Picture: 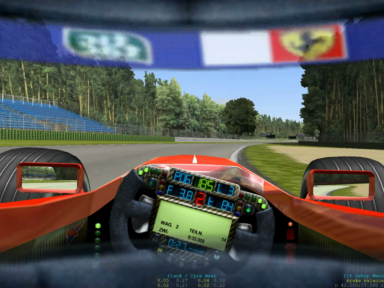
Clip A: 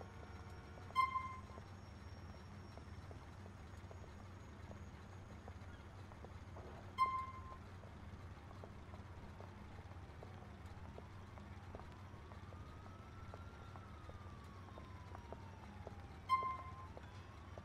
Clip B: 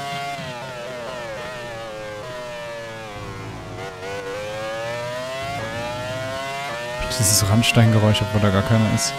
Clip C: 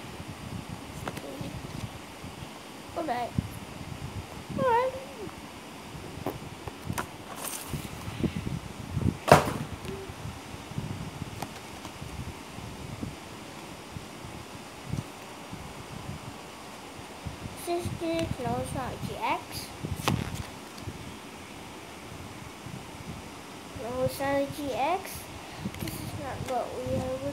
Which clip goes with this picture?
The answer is B